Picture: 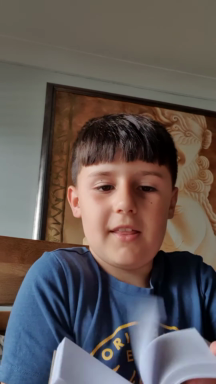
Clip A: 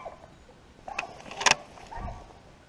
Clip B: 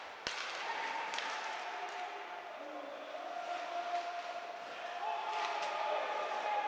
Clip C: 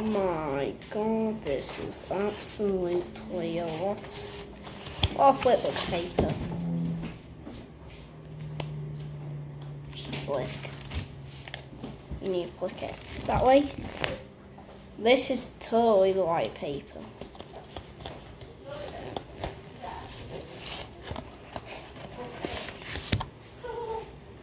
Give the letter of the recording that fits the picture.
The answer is C